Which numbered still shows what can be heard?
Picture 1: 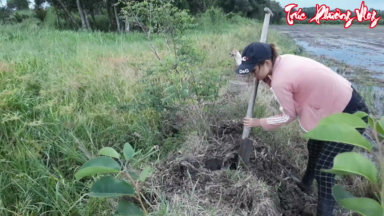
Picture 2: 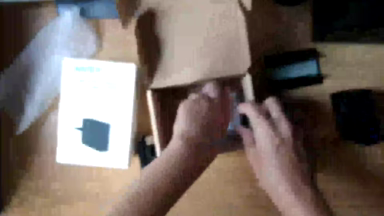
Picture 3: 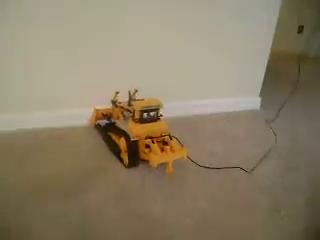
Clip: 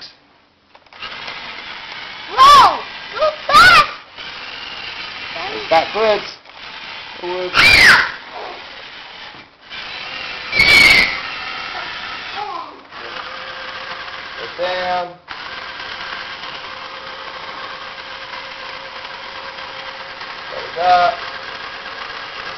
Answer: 3